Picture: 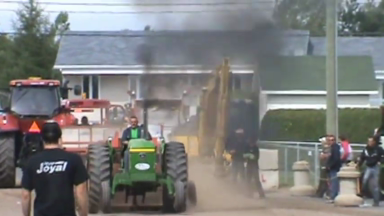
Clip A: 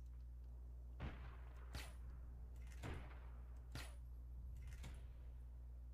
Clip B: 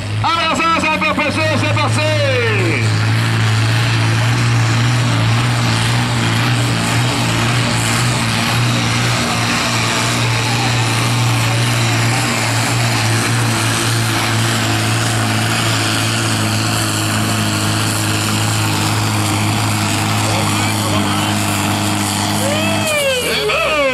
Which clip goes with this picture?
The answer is B